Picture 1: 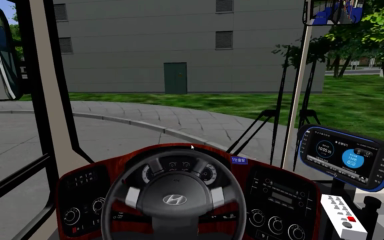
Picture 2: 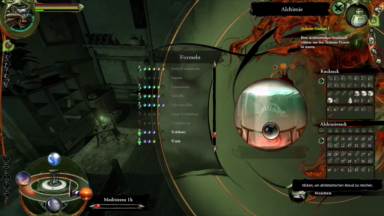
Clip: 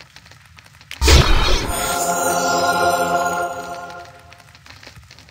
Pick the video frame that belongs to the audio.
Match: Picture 2